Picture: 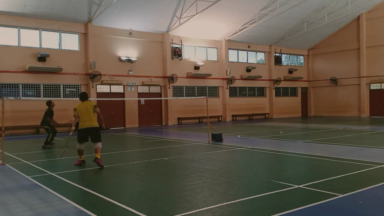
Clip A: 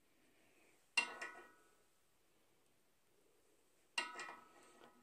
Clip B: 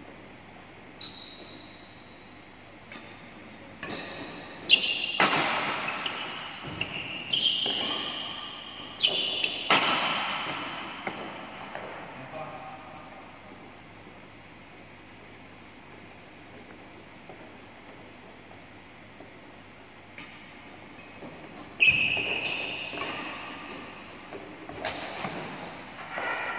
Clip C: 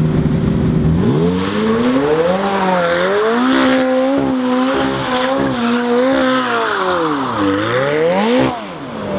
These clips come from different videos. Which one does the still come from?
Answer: B